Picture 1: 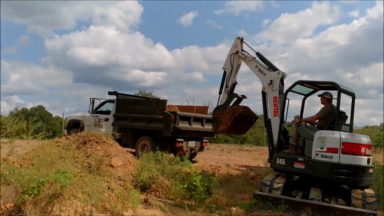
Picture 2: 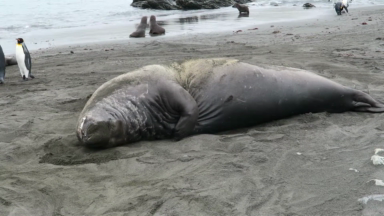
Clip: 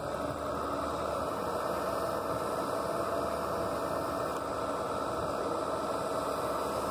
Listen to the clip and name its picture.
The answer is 1